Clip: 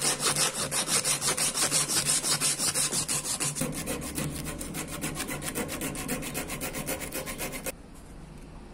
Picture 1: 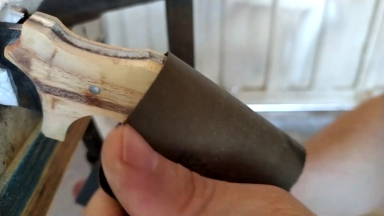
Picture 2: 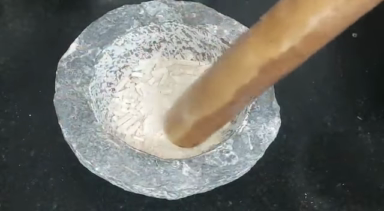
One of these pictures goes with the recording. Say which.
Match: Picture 1